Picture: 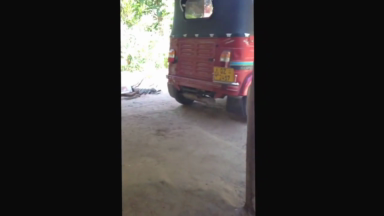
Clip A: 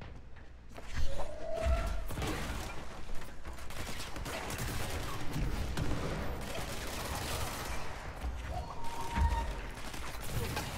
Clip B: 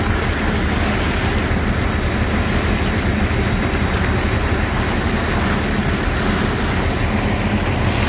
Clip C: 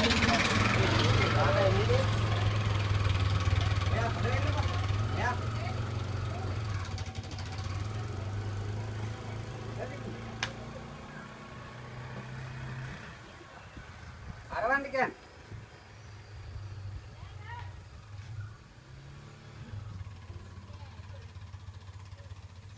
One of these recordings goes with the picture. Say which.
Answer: C